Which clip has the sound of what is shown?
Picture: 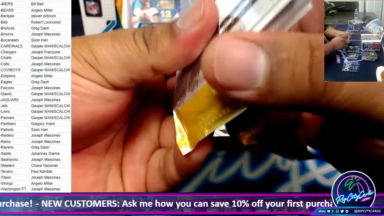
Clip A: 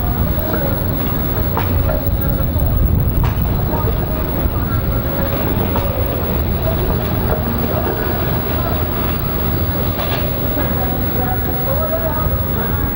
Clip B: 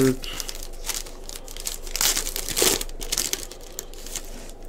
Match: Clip B